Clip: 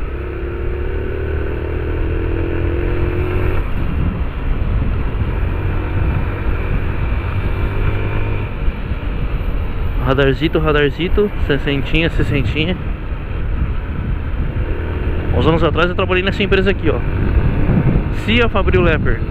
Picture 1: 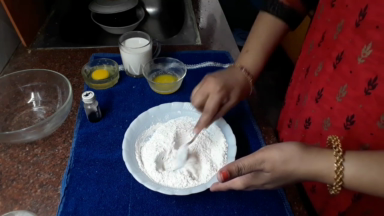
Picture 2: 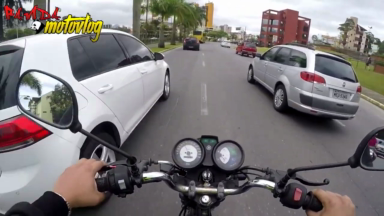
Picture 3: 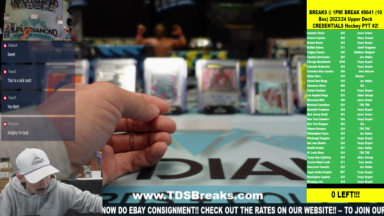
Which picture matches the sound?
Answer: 2